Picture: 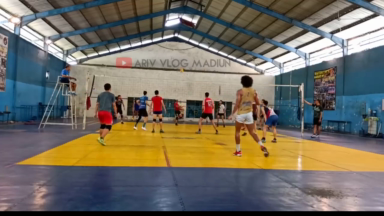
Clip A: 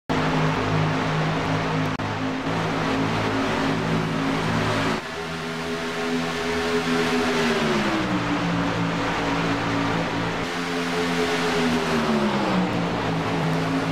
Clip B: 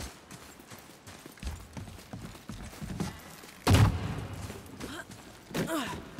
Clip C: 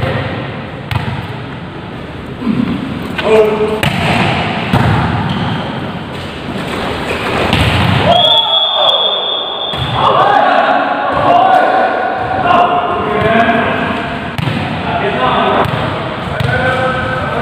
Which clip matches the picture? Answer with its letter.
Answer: C